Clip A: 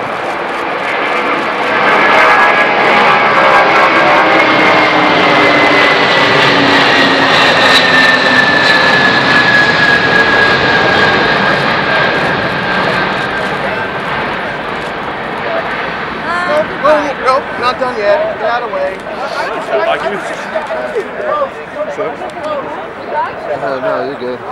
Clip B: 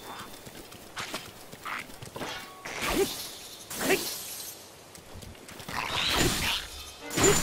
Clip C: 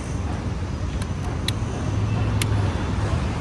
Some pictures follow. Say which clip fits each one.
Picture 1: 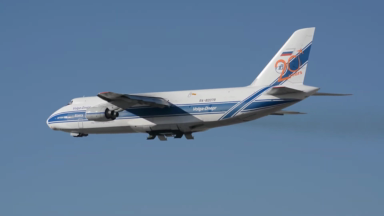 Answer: A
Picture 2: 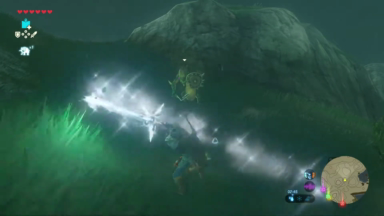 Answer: B